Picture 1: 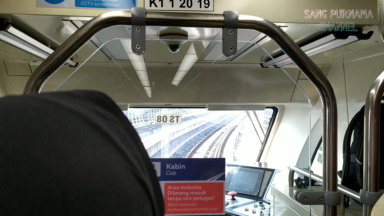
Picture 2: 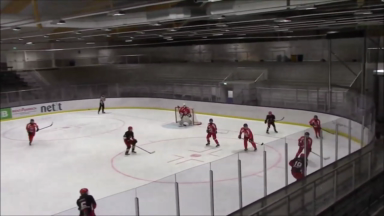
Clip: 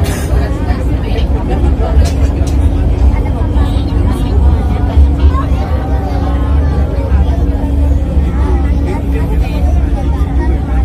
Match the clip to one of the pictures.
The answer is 1